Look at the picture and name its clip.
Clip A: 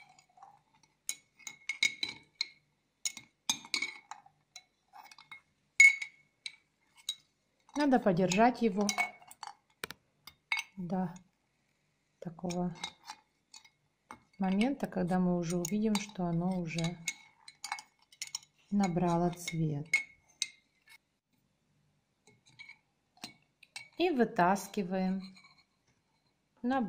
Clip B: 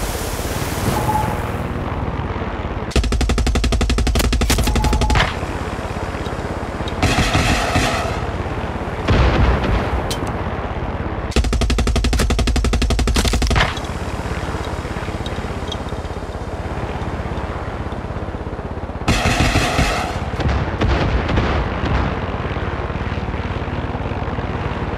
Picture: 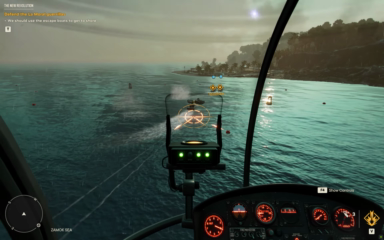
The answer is B